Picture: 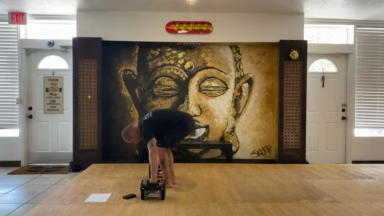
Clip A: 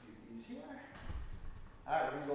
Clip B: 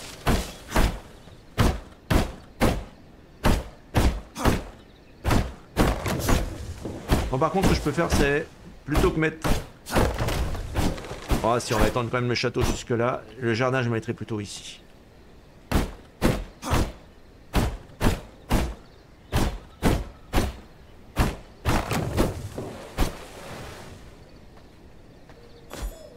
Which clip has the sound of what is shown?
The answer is A